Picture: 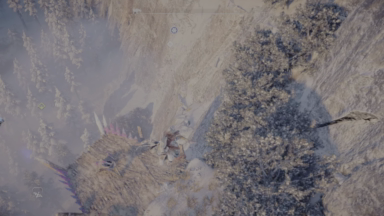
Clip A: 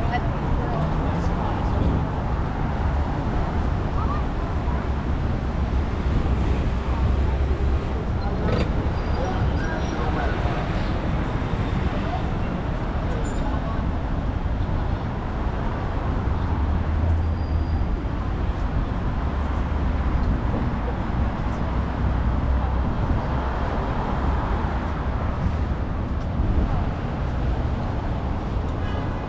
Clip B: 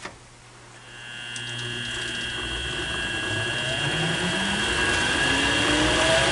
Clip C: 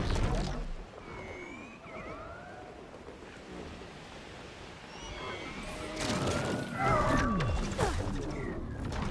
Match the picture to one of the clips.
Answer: C